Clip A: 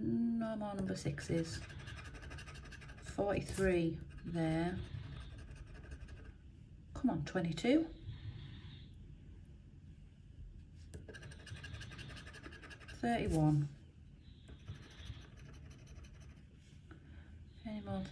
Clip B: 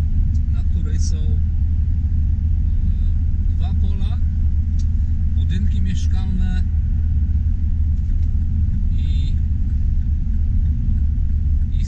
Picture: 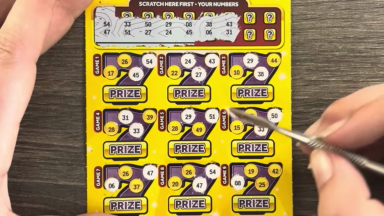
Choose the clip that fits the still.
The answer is A